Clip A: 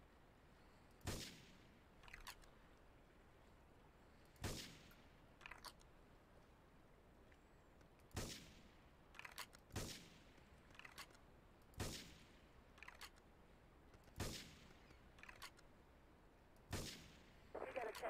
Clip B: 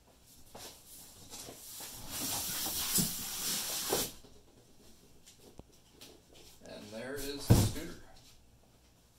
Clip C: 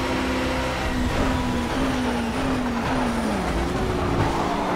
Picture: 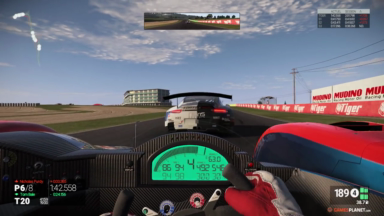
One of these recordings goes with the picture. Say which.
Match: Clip C